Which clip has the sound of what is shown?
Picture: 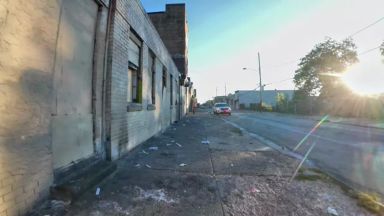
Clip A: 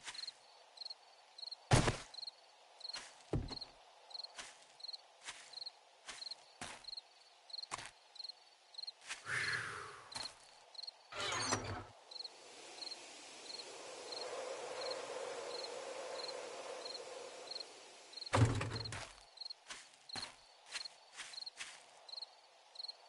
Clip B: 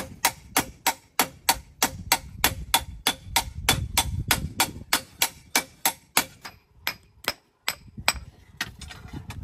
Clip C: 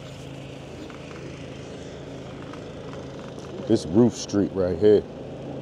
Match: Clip C